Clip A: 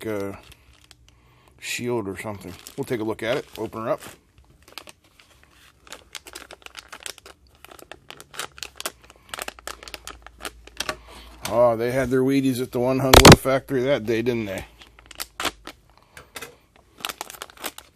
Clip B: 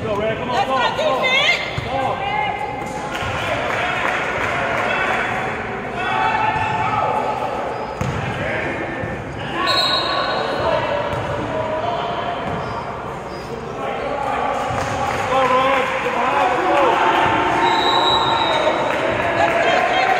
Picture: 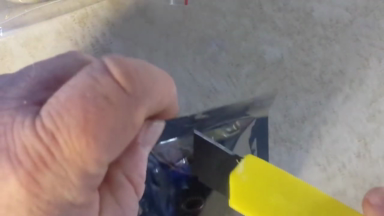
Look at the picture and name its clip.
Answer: A